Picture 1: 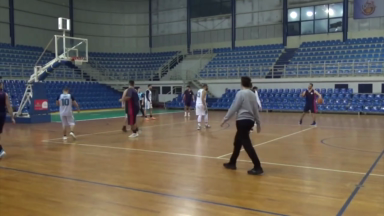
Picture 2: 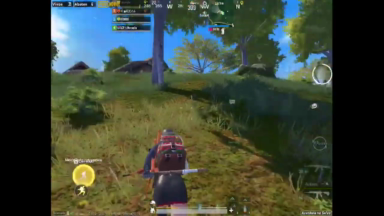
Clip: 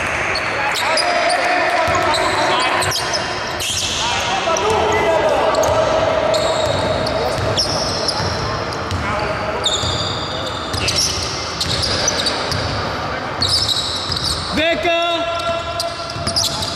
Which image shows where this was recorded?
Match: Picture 1